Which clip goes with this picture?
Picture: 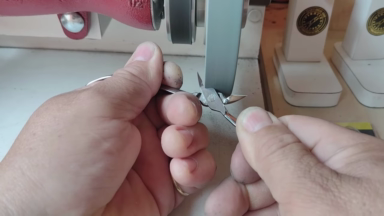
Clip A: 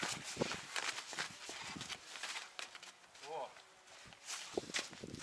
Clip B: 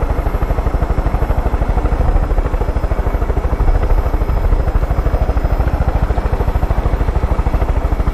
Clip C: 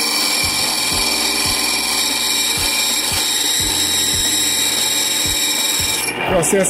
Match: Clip C